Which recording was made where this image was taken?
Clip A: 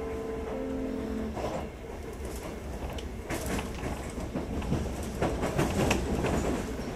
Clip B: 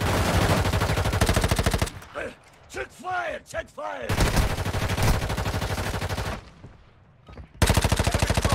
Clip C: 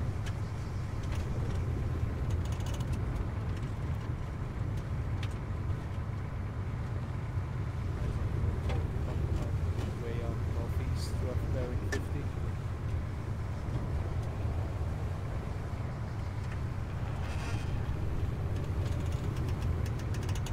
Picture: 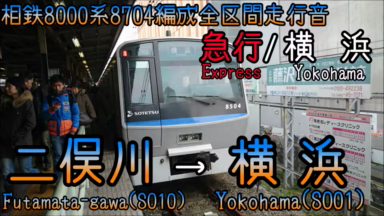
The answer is A